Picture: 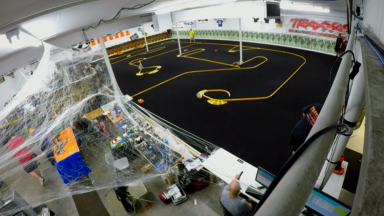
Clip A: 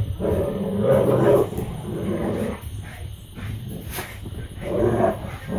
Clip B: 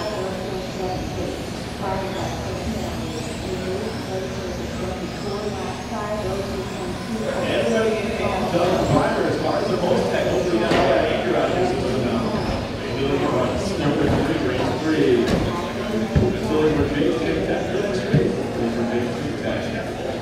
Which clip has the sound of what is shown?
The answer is B